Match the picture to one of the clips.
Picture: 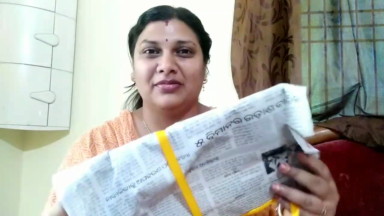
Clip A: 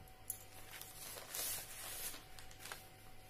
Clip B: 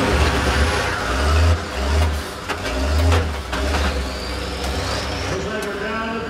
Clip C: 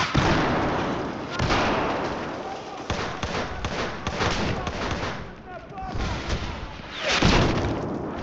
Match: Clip A